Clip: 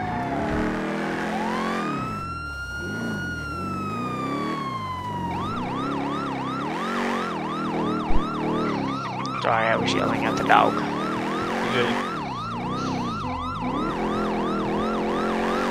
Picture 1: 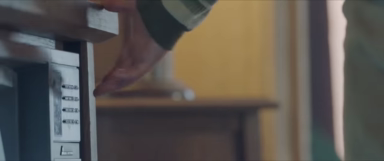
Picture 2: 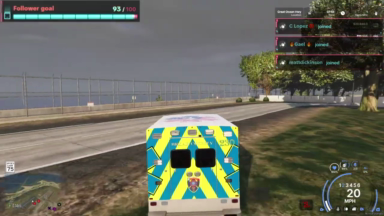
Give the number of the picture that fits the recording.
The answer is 2